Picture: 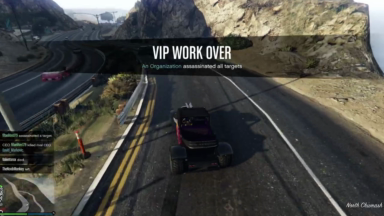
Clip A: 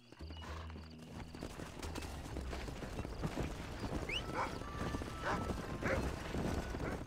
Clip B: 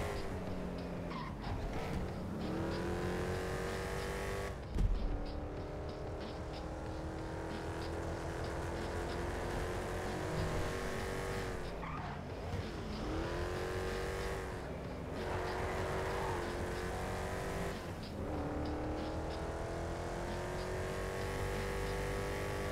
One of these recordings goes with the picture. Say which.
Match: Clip B